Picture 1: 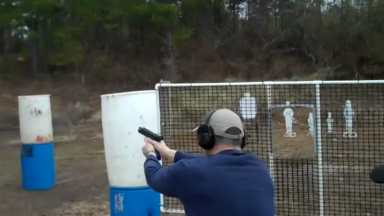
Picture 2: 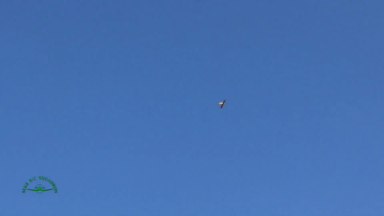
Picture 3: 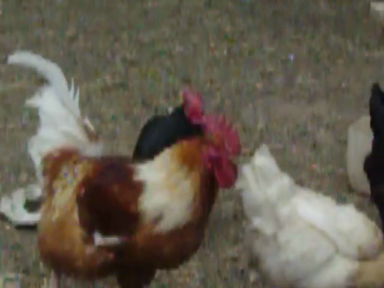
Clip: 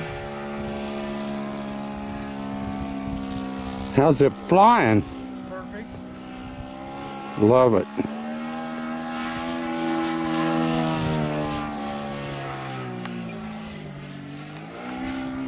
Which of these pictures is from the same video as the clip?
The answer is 2